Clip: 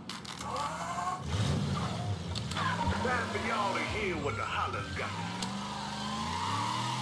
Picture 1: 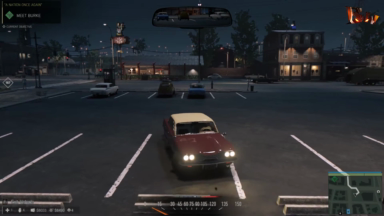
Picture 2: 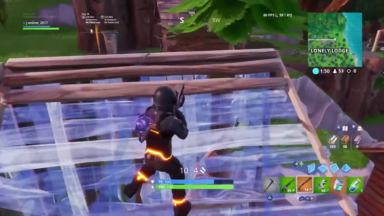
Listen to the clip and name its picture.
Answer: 1